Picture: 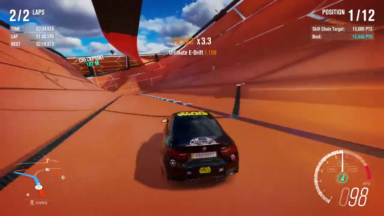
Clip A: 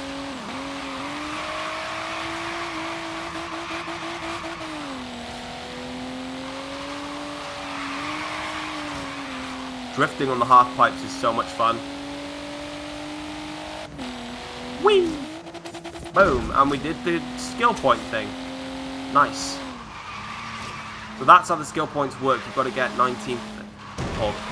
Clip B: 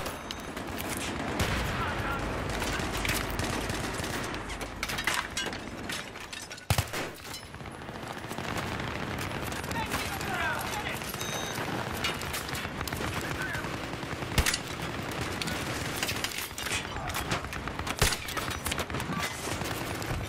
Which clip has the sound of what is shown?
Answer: A